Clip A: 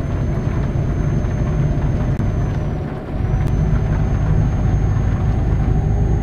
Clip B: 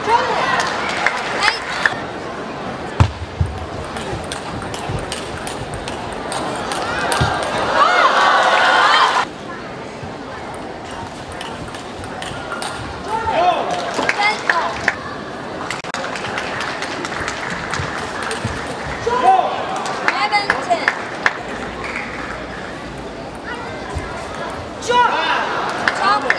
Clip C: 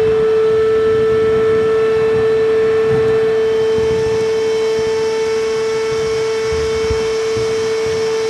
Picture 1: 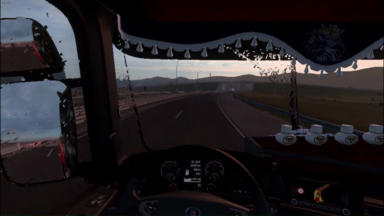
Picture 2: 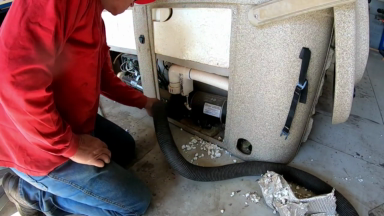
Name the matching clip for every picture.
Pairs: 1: A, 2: C